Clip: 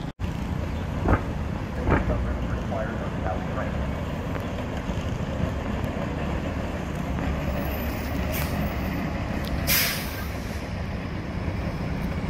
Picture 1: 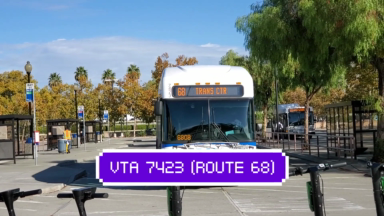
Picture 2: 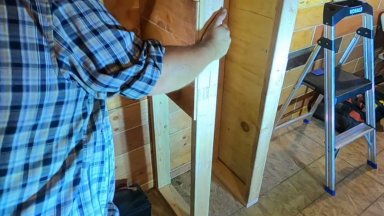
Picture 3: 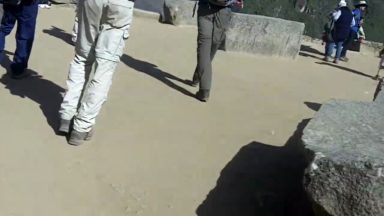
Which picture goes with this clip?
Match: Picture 1